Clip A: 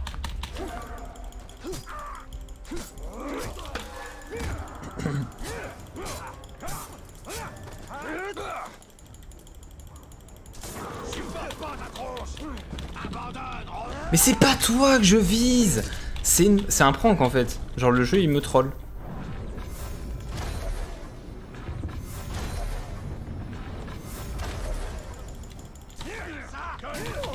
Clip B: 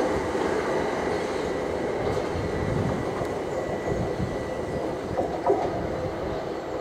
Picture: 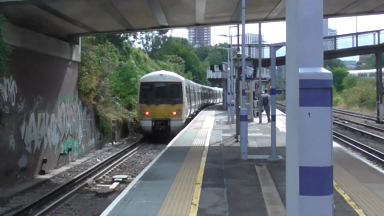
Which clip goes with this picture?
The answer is B